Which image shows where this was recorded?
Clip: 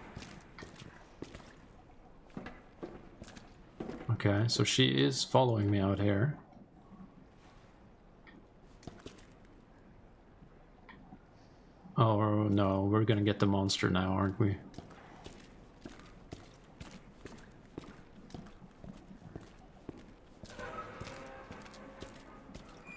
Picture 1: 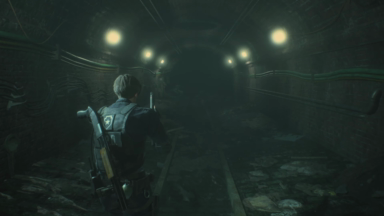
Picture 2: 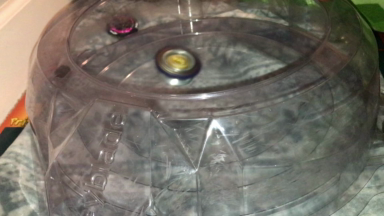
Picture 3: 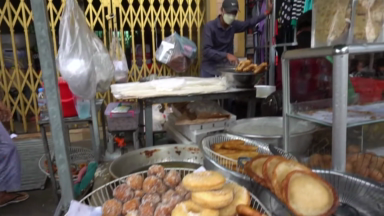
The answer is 1